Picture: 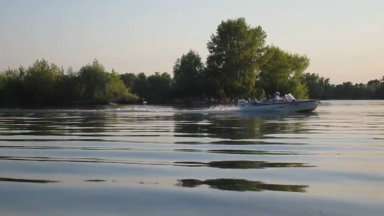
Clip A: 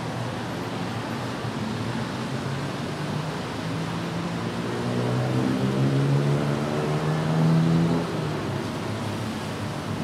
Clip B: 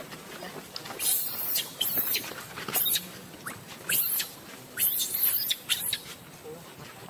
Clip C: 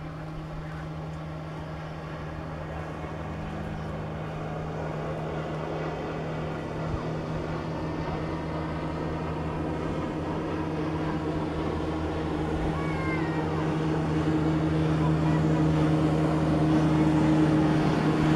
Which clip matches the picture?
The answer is C